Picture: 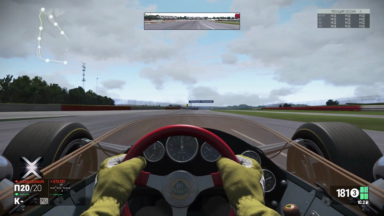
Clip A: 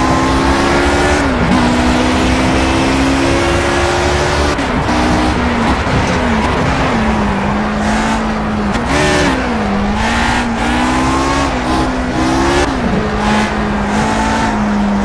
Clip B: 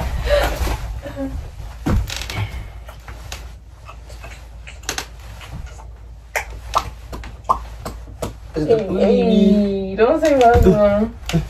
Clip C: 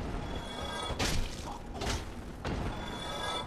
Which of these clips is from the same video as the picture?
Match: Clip A